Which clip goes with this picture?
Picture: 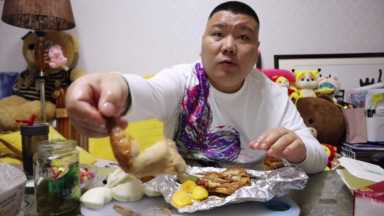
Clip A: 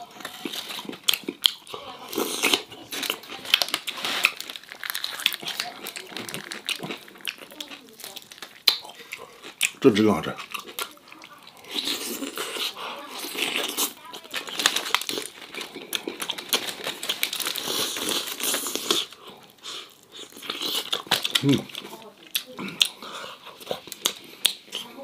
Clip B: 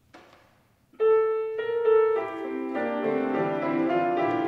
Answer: A